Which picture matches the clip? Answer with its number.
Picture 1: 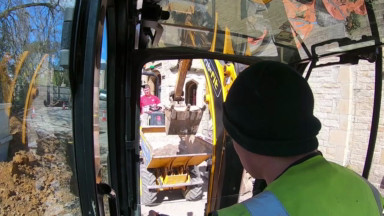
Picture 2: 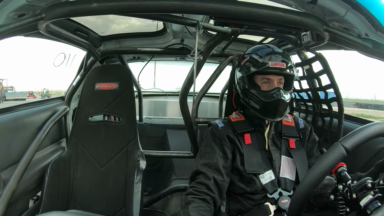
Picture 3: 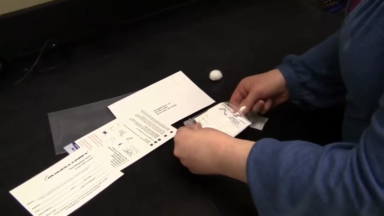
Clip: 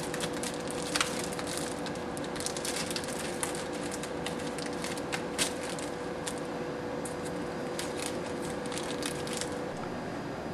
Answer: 3